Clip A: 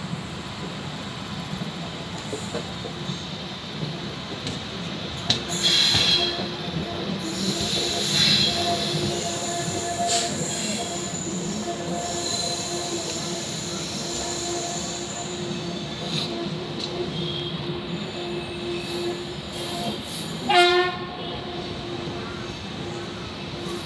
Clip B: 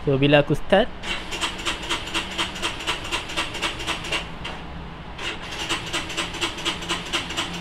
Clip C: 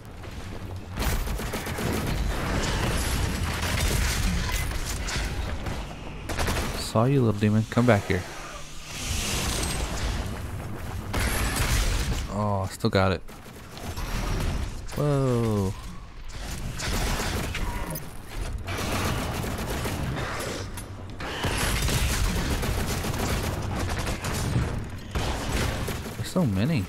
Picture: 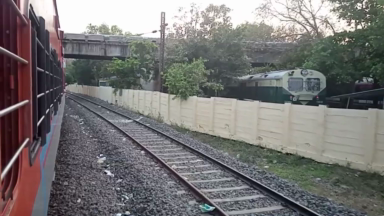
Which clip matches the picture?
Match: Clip A